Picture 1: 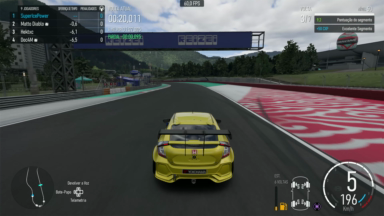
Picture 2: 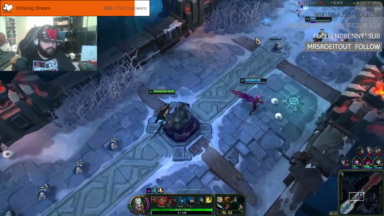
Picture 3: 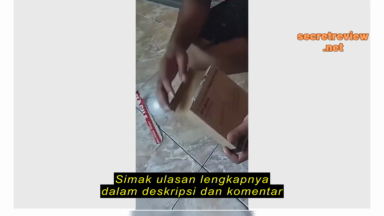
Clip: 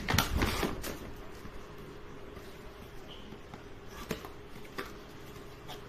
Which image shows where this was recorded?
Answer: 3